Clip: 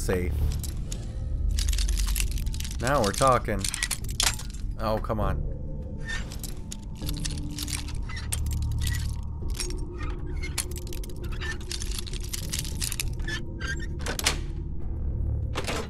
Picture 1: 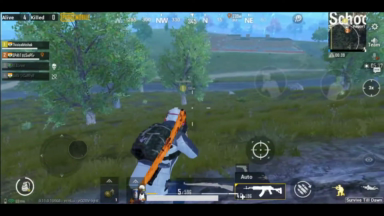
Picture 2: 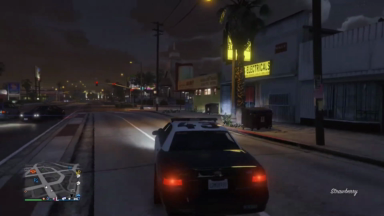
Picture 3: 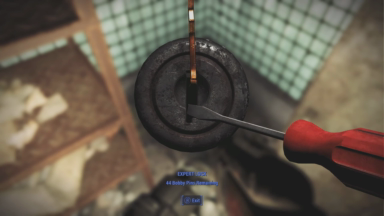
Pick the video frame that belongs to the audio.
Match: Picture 3